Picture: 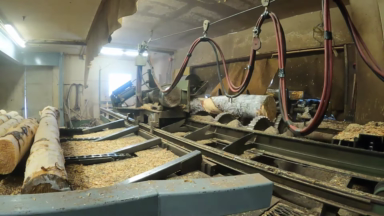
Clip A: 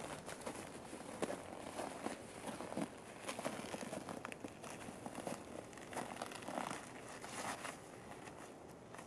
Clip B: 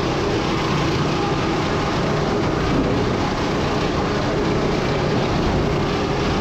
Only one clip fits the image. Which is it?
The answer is B